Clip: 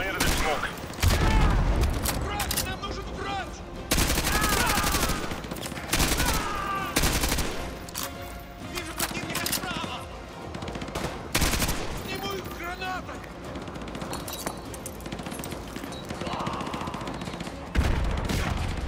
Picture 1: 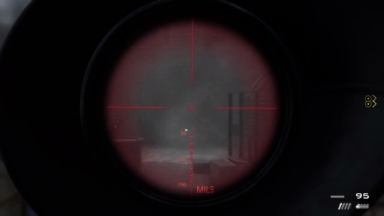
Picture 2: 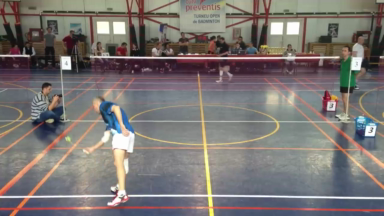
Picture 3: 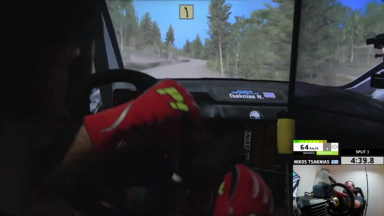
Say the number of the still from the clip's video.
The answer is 1